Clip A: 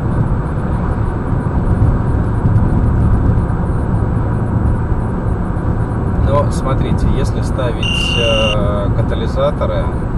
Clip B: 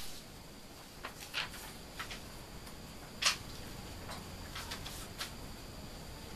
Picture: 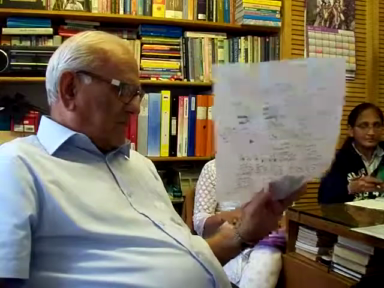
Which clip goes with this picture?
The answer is B